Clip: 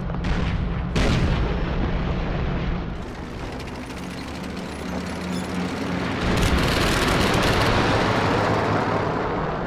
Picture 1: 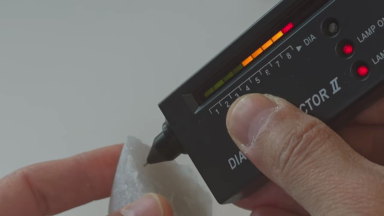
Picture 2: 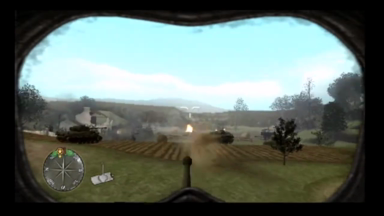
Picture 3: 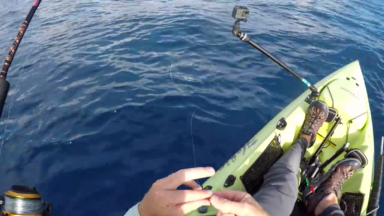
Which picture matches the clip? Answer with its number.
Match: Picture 2